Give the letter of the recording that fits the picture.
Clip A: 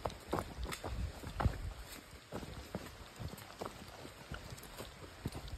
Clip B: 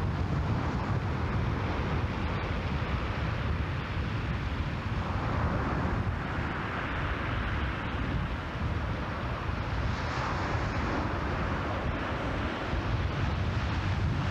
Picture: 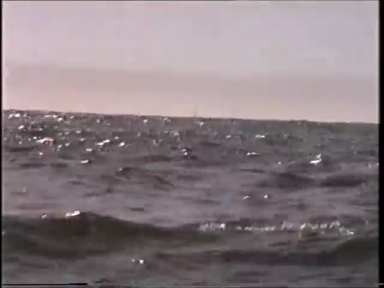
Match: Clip B